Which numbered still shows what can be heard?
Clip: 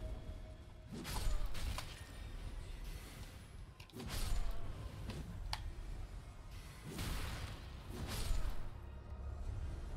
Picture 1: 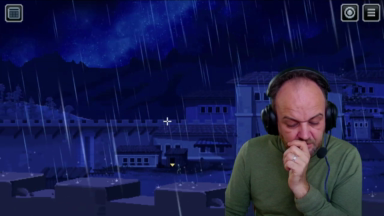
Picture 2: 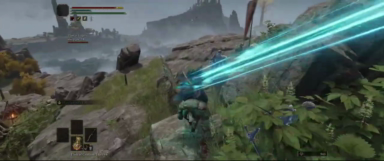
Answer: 2